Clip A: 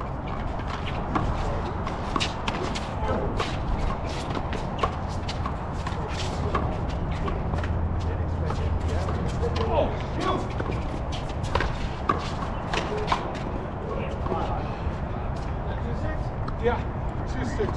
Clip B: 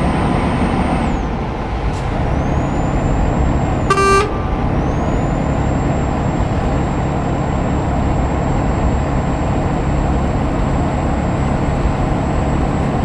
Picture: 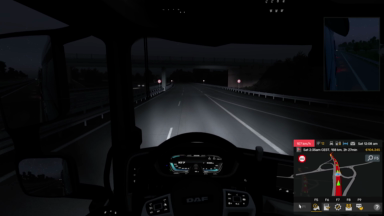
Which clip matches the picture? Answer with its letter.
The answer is B